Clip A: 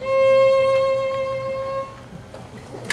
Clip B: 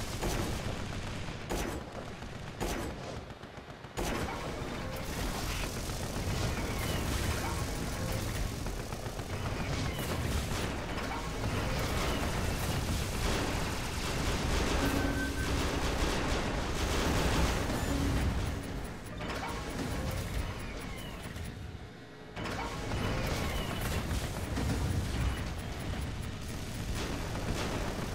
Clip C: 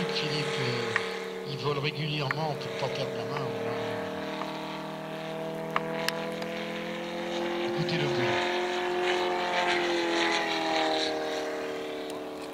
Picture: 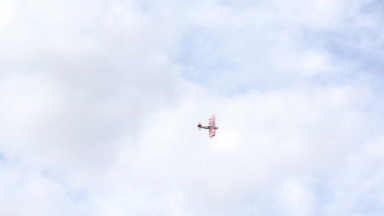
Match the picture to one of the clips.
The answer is C